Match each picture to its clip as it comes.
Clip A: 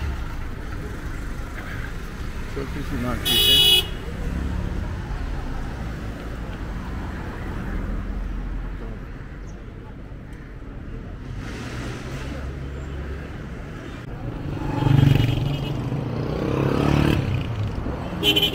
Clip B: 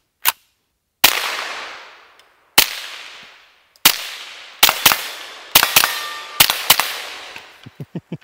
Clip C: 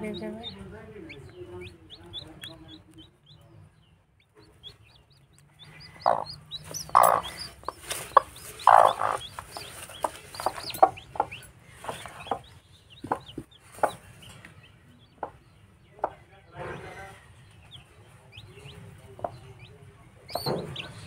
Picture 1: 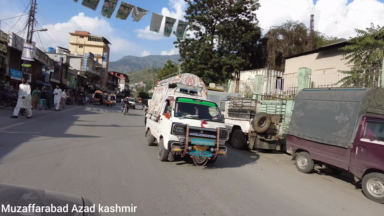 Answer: A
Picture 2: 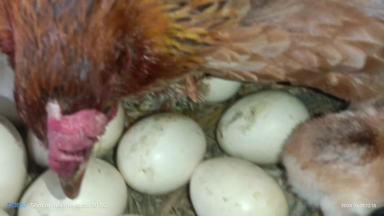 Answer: C